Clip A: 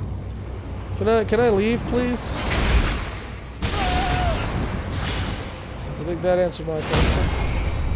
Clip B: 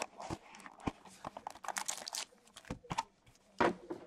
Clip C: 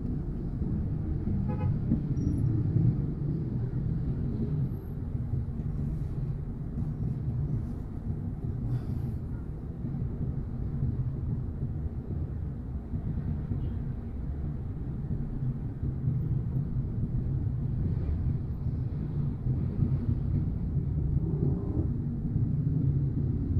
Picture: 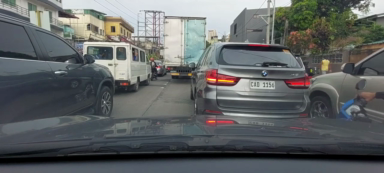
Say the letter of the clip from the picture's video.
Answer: C